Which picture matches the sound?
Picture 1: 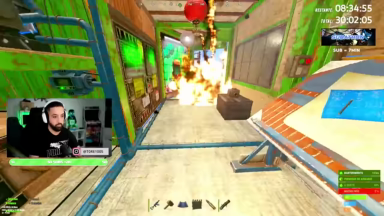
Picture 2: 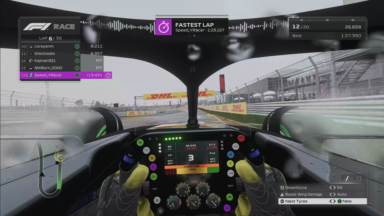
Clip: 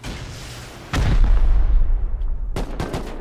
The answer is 1